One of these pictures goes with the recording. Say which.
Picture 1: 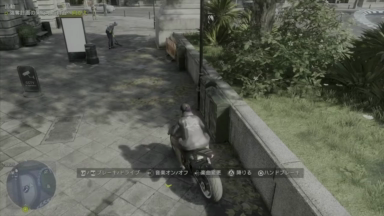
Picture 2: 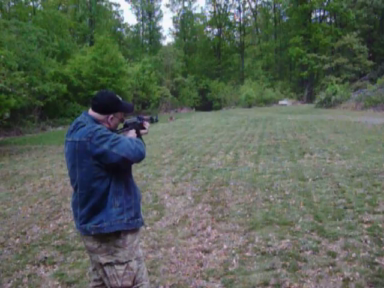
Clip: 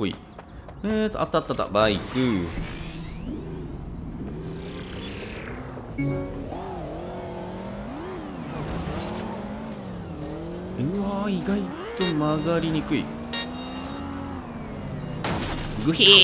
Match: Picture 1